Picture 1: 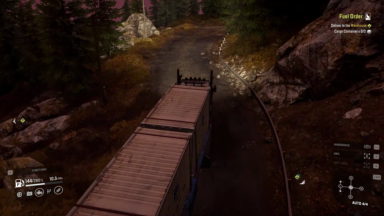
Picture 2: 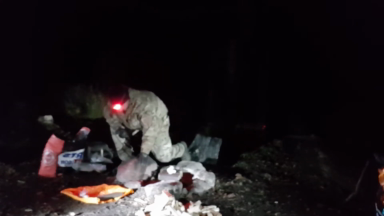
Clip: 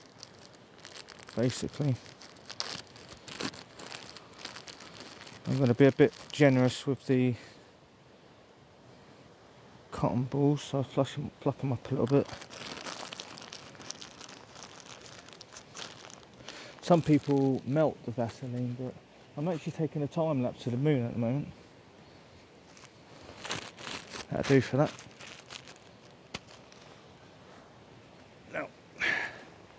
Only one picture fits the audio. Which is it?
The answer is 2